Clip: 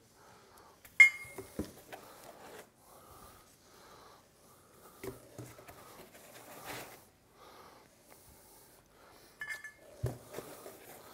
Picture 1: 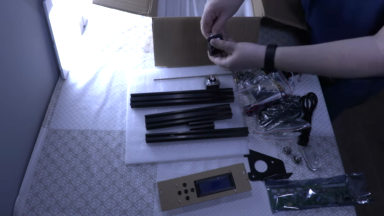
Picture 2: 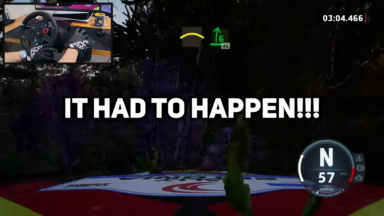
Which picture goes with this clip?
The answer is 1